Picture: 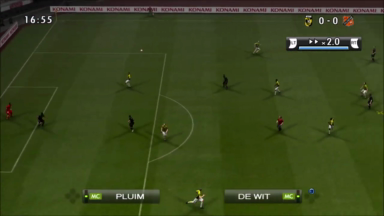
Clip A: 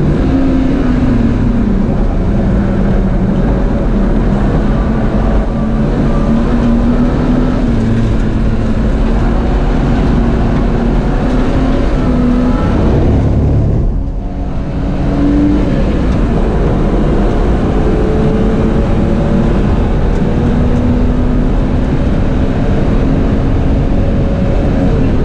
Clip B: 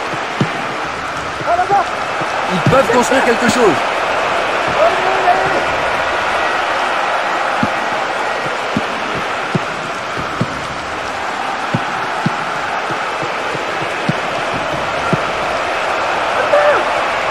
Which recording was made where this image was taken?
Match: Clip B